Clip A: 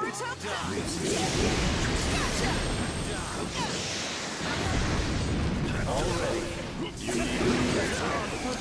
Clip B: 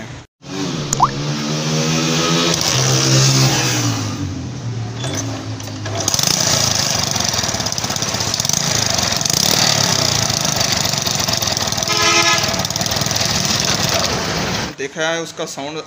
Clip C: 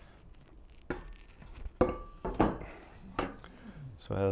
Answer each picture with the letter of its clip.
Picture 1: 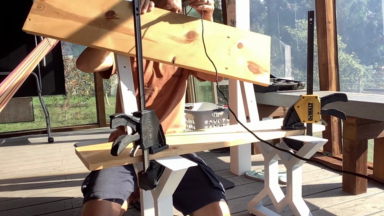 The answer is C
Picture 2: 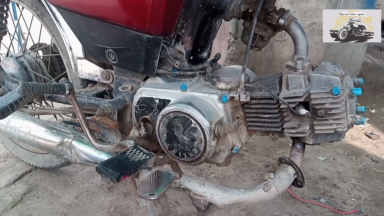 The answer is B